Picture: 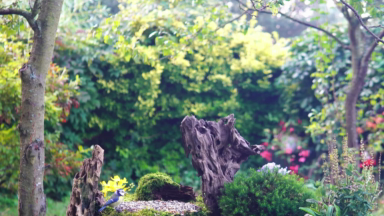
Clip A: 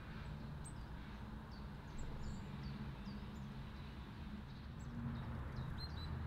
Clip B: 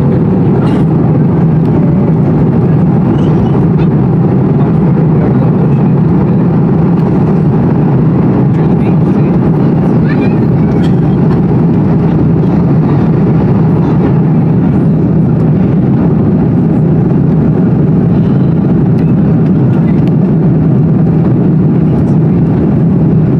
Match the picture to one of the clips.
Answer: A